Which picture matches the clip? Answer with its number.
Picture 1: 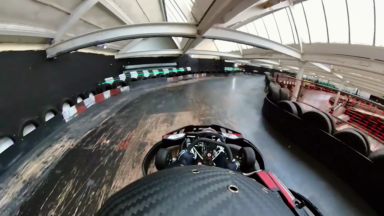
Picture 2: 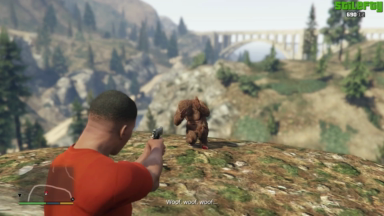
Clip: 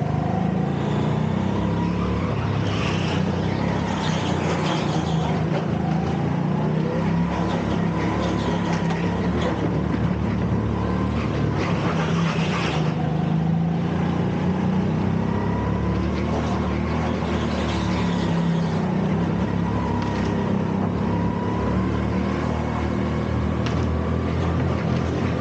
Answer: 1